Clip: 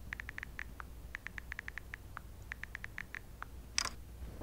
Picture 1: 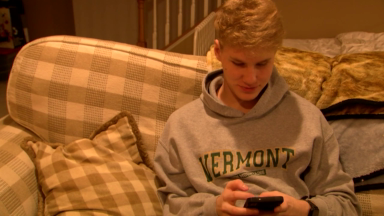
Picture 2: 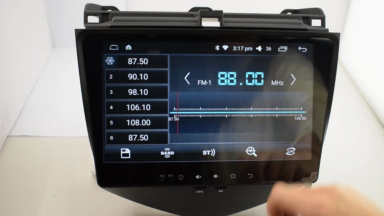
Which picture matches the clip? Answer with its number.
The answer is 1